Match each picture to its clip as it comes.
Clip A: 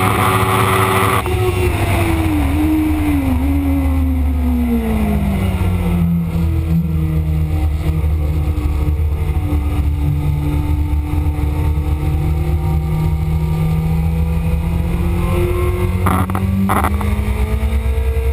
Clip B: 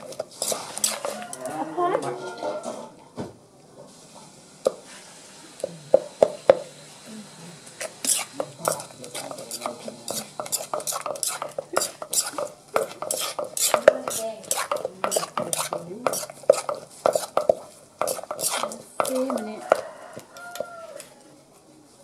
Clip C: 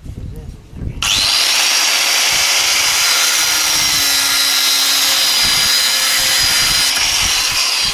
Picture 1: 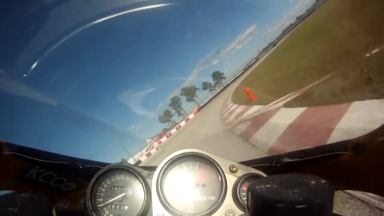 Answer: A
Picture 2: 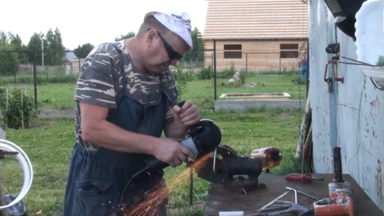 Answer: C